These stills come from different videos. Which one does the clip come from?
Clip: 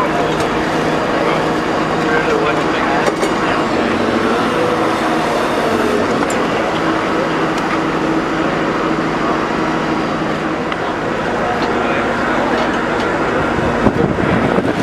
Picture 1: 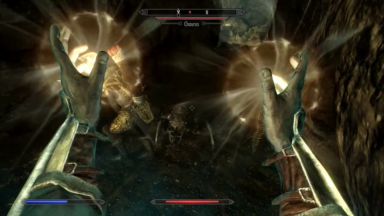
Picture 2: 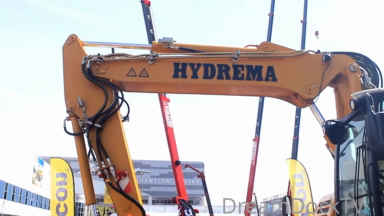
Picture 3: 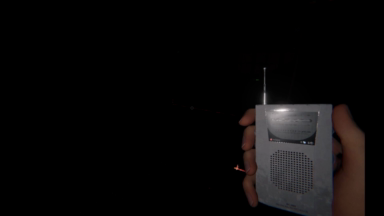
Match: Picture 2